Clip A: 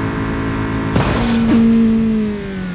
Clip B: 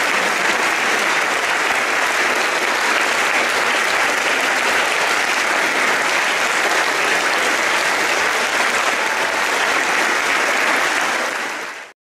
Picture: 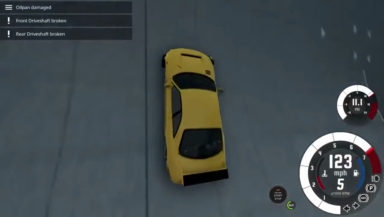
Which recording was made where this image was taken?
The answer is A